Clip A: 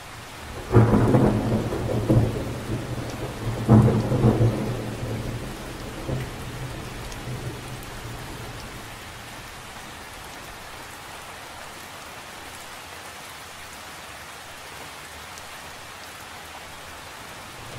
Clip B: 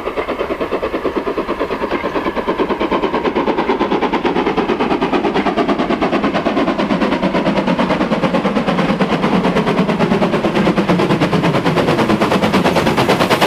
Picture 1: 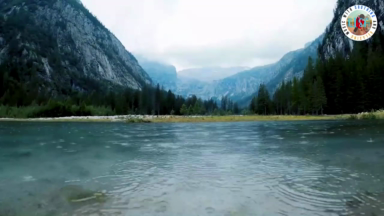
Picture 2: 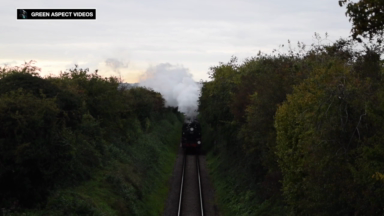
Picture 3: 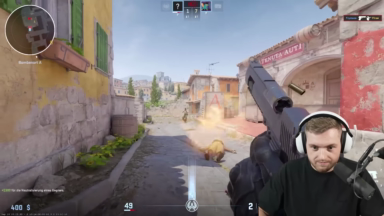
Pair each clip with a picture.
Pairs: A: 1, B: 2